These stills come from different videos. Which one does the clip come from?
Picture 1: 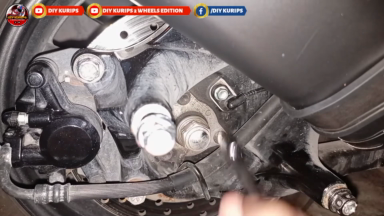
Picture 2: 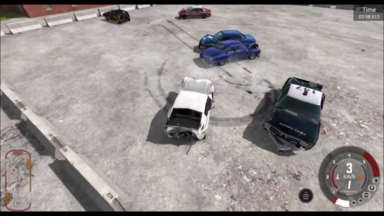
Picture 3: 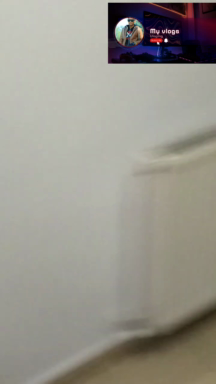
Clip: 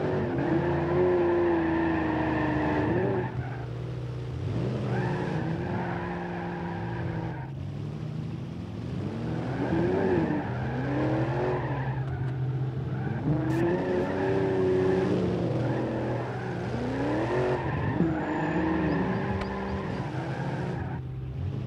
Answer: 2